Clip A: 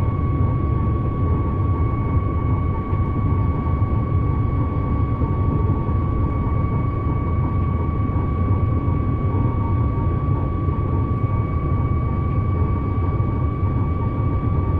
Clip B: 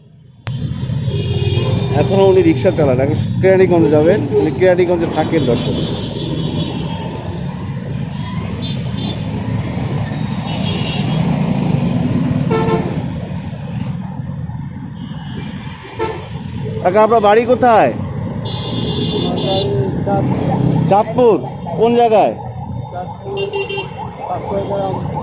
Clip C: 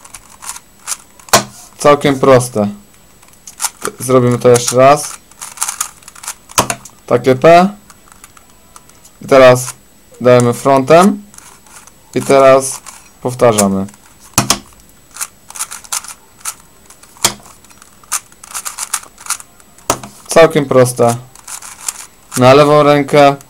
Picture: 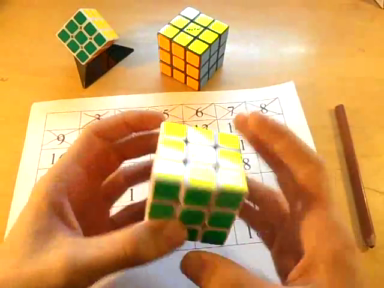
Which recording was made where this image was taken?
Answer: C